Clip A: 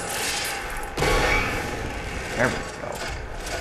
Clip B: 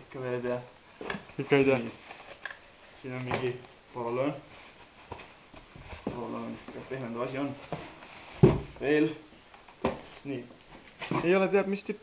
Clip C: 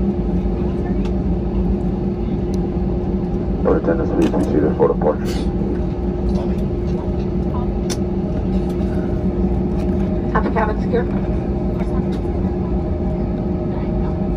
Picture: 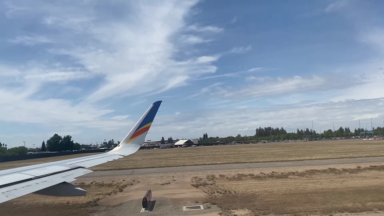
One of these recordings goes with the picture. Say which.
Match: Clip C